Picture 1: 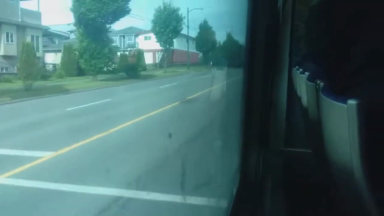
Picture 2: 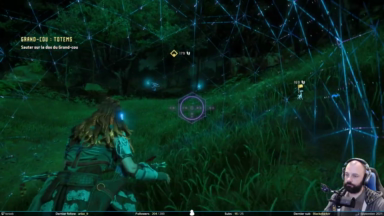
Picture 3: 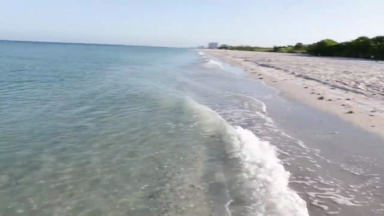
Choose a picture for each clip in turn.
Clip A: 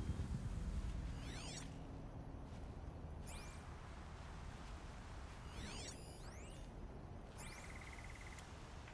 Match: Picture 2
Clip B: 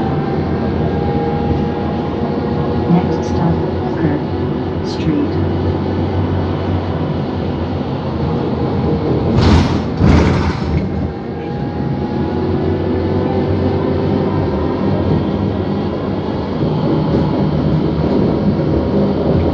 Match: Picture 1